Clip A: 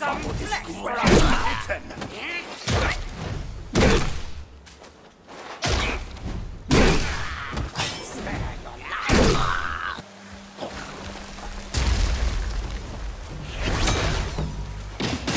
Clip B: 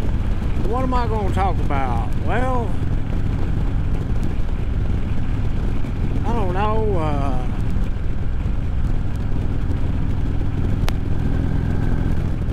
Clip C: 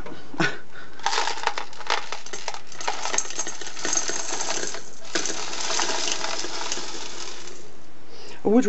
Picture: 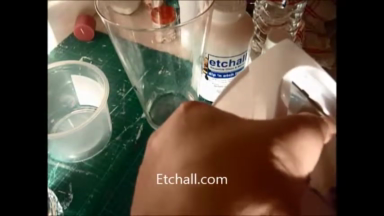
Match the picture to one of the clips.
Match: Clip C